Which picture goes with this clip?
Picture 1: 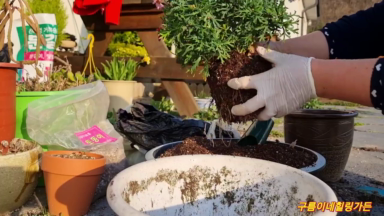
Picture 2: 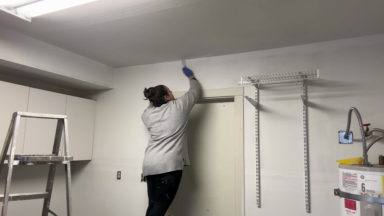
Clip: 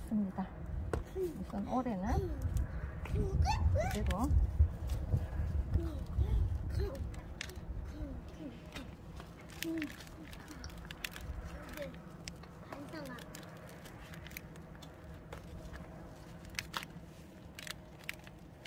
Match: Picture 1